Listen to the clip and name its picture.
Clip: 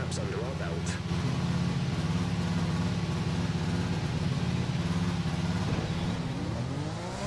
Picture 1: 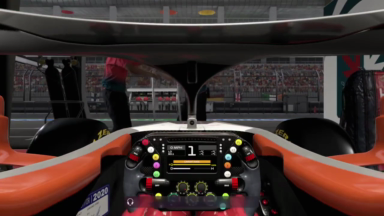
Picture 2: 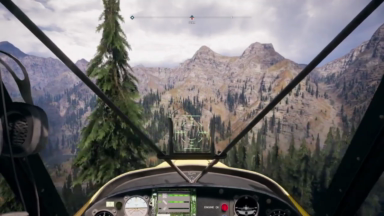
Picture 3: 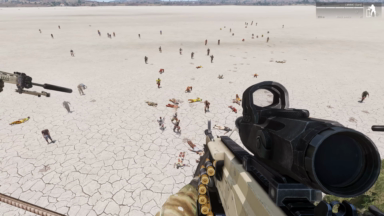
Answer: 1